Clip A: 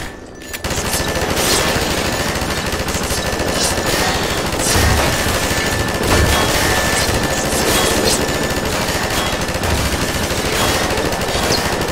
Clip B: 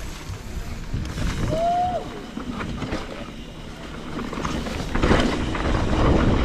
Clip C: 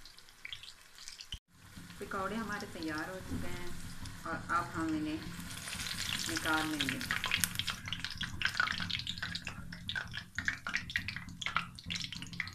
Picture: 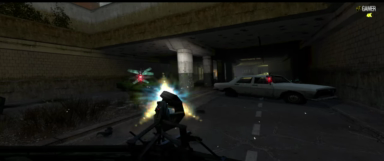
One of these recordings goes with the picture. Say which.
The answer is A